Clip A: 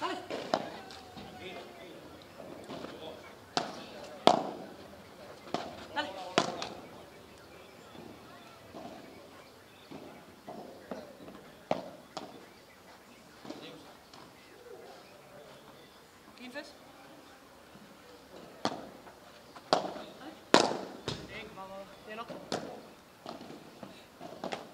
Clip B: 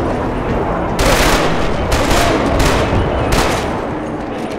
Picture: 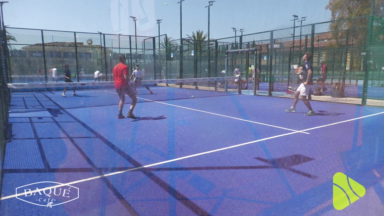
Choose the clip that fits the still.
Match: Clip A